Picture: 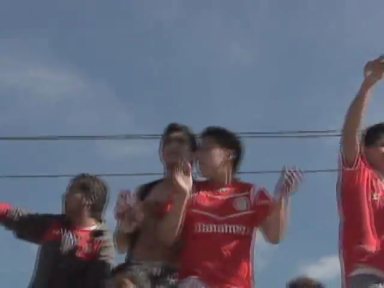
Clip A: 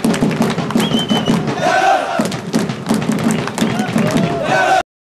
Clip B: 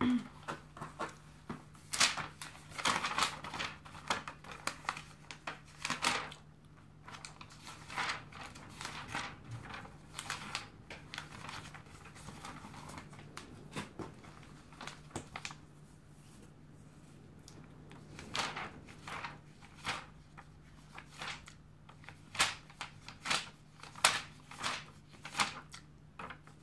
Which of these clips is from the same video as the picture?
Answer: A